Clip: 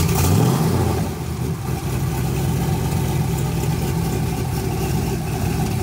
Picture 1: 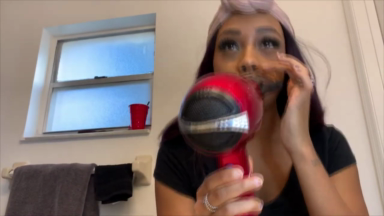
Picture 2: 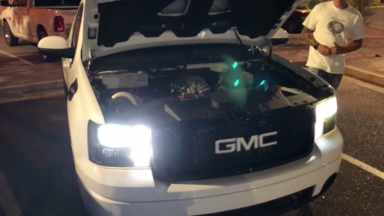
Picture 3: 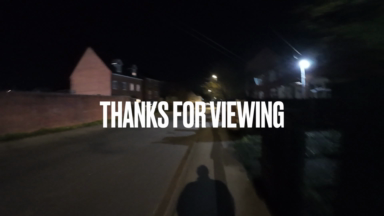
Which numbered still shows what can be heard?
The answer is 2